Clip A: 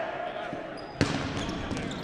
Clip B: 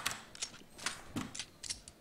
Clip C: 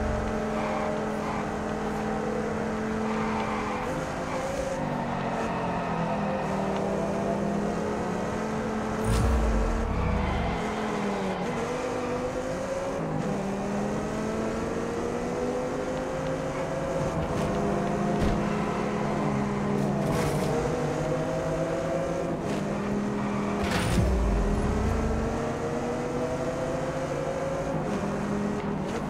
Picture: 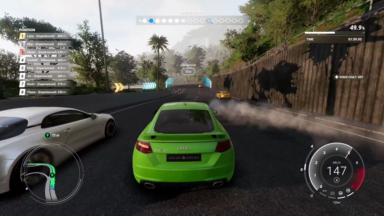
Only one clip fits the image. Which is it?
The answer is C